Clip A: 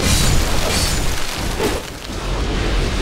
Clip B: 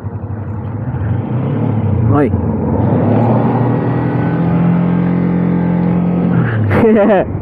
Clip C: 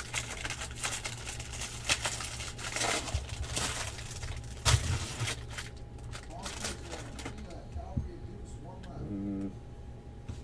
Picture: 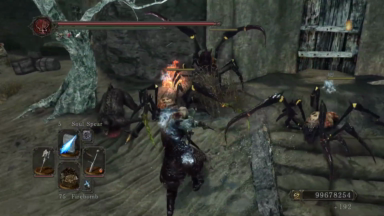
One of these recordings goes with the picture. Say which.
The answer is A